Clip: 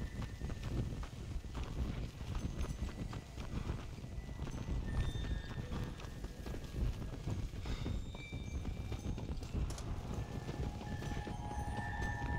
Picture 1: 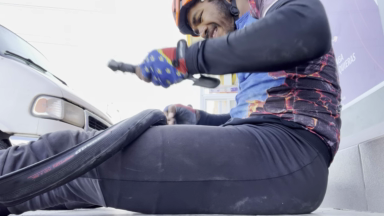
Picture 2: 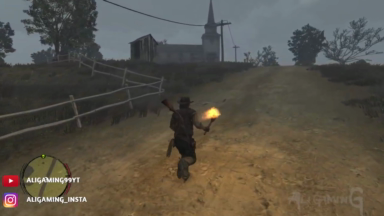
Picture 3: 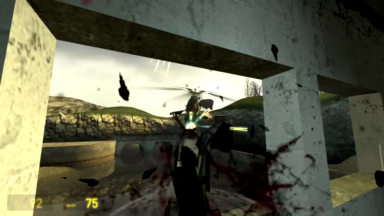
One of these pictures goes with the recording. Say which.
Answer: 2